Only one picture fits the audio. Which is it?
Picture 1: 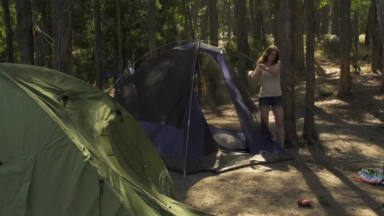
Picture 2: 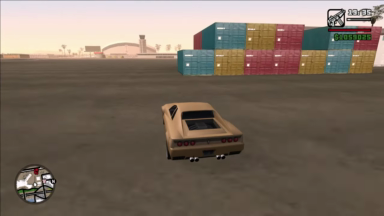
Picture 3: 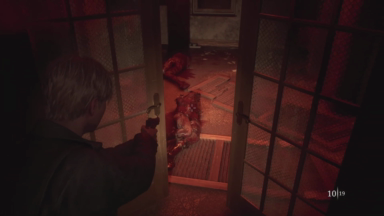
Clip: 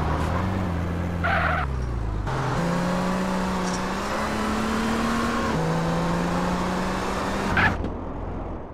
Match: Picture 2